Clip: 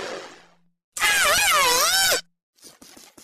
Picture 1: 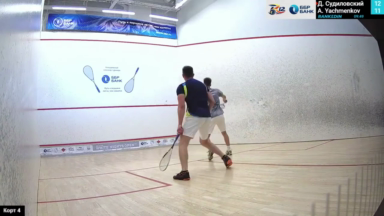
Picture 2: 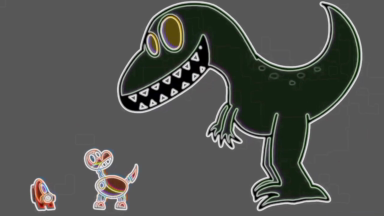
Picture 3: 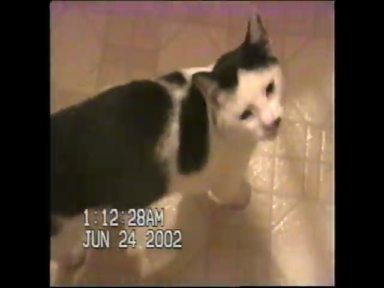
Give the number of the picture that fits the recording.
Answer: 2